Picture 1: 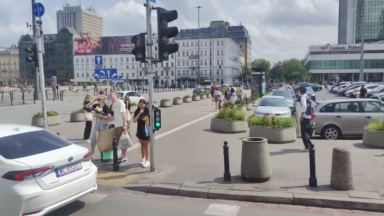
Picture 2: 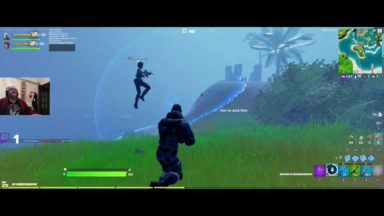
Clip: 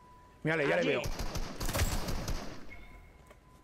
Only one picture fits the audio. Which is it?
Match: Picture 2